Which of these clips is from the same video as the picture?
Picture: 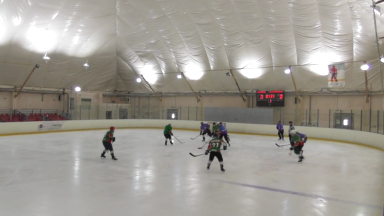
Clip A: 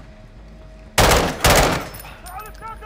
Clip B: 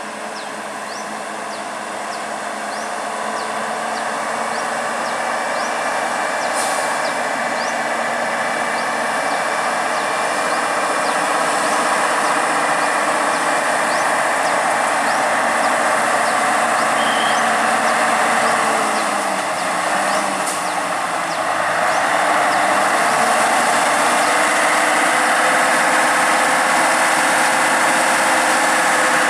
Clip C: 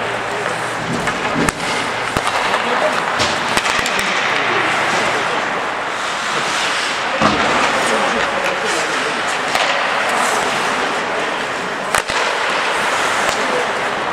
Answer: C